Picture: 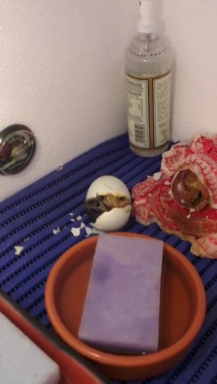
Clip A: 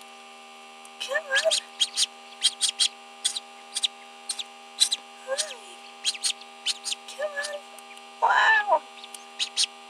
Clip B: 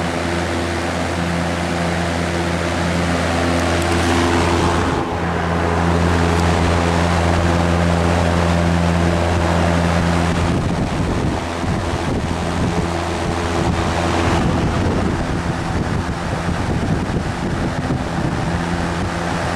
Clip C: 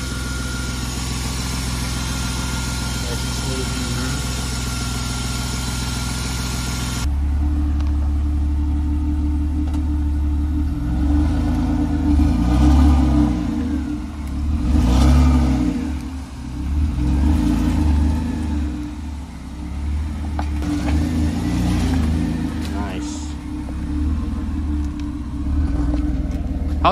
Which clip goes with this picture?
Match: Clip A